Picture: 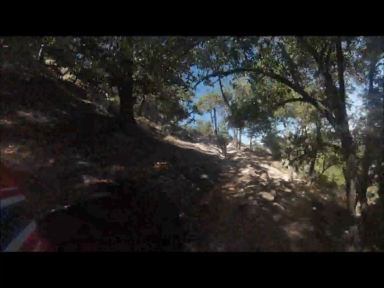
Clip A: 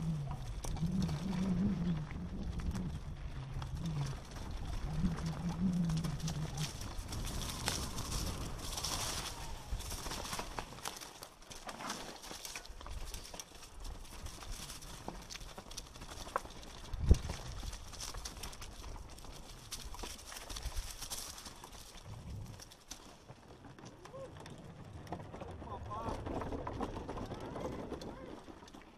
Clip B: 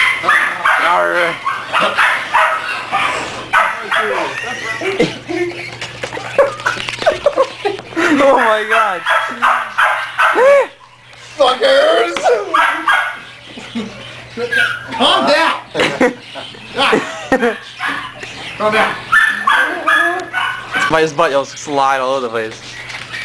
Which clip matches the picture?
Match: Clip A